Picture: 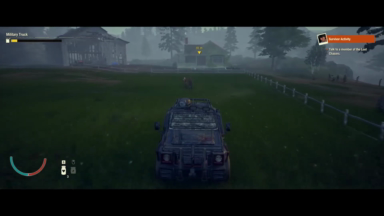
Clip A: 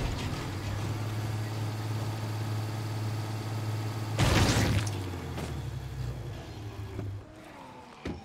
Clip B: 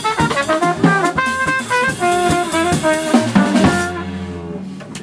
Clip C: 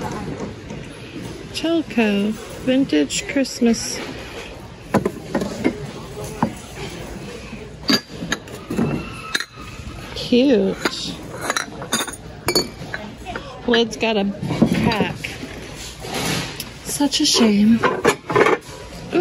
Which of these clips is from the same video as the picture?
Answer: A